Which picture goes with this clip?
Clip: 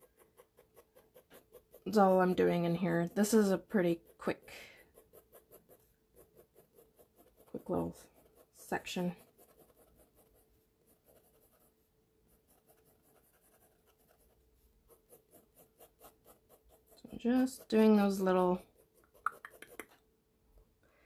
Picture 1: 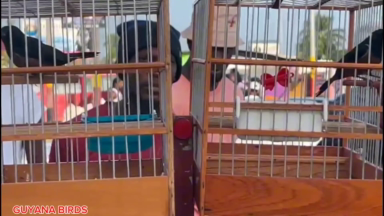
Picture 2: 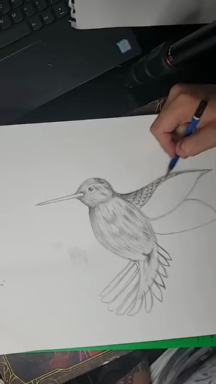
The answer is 2